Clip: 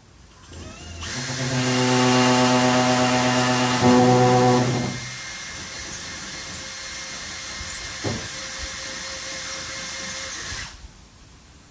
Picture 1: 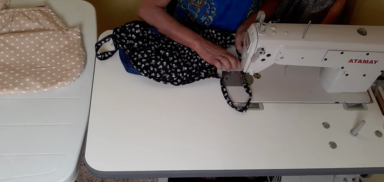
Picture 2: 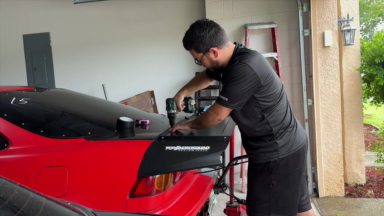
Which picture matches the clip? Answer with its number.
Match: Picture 2